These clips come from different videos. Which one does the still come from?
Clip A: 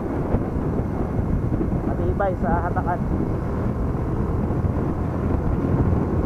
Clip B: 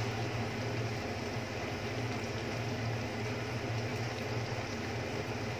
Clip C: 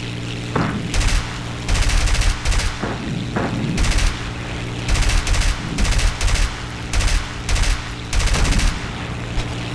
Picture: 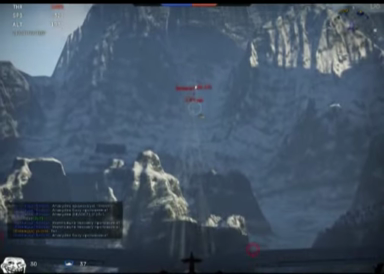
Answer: C